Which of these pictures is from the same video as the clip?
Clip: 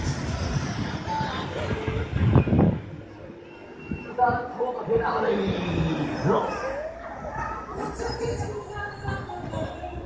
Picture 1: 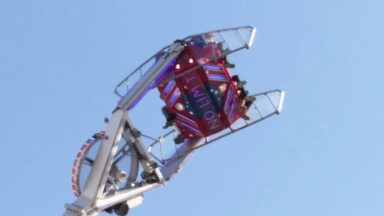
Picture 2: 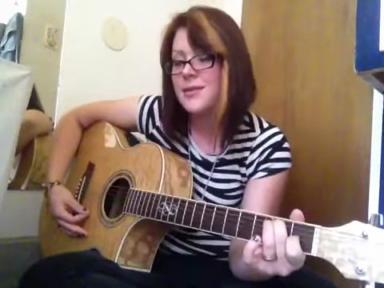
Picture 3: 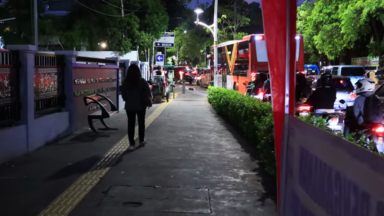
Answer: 1